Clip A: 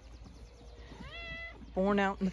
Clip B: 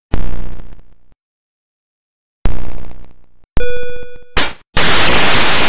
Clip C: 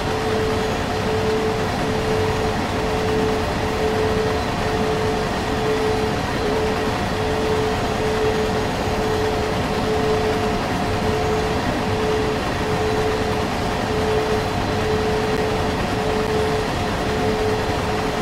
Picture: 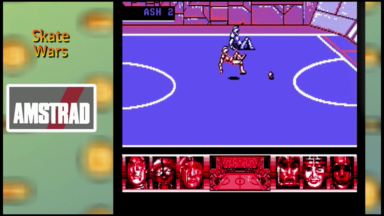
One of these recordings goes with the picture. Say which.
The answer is B